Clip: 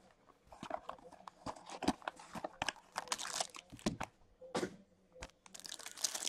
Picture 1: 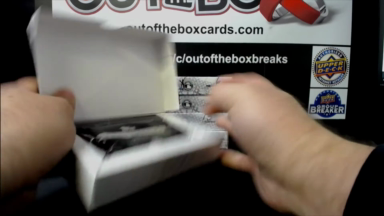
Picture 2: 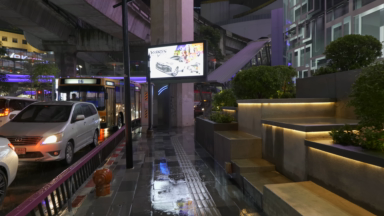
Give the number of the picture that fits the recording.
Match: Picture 1